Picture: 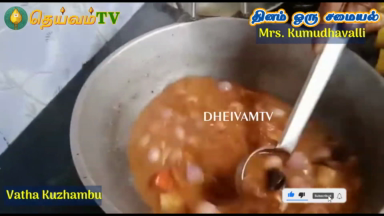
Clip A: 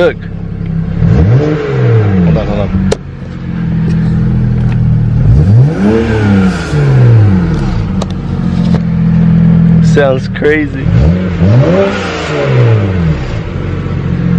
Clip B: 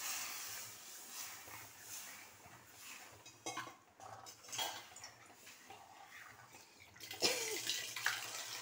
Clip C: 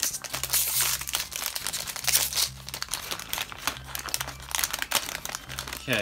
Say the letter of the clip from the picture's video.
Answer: B